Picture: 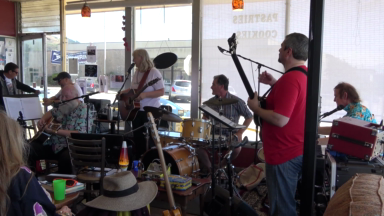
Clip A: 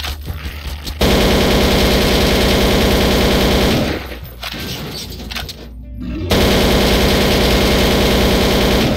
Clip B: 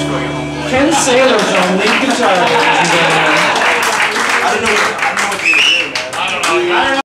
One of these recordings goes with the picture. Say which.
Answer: B